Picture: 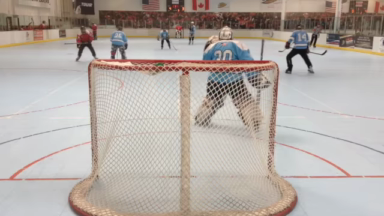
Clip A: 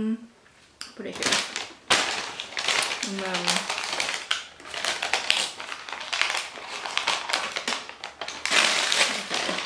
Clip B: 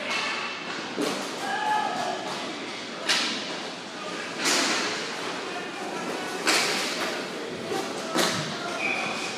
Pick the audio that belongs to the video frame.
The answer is B